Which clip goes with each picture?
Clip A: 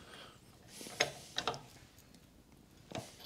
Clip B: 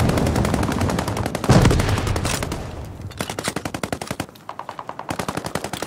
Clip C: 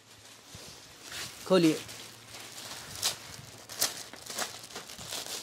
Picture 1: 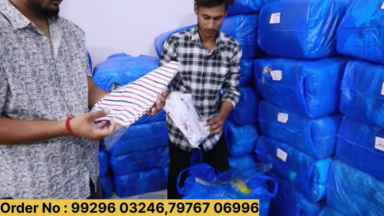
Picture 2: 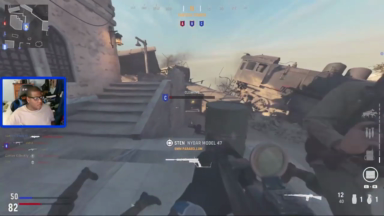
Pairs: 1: C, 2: B